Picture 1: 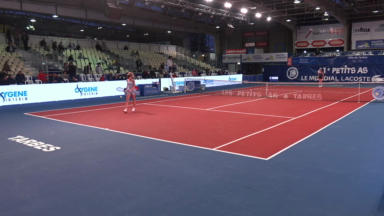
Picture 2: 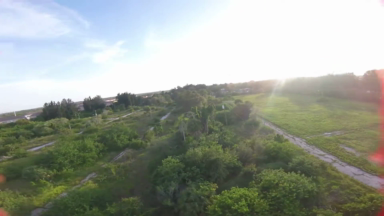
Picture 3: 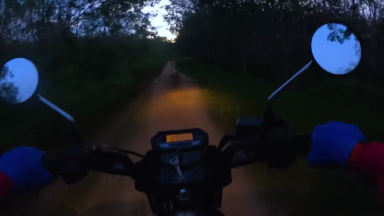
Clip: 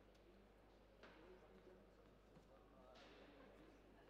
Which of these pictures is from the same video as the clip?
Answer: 1